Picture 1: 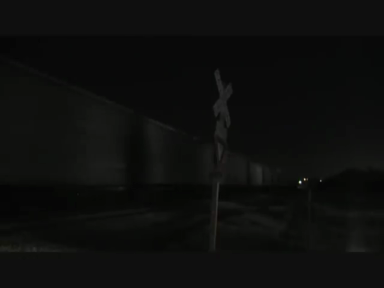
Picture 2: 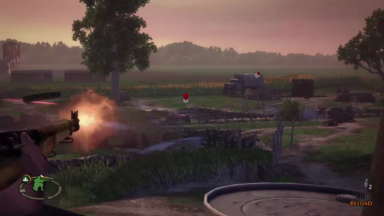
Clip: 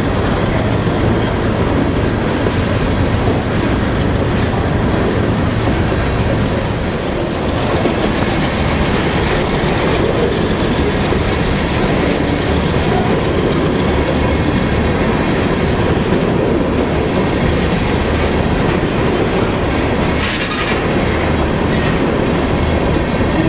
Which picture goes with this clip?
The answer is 1